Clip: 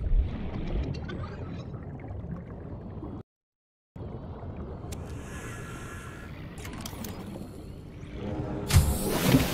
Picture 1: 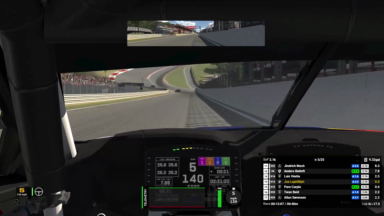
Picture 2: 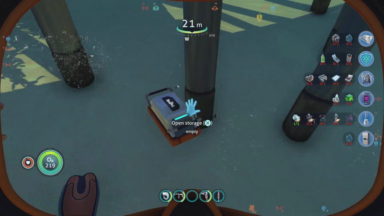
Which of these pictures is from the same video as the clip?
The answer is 2